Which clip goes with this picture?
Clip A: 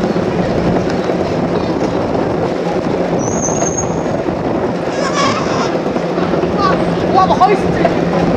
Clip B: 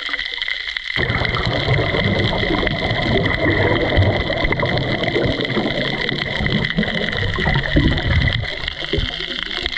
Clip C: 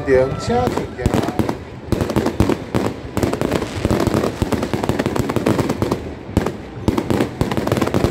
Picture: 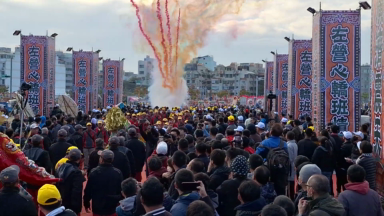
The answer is C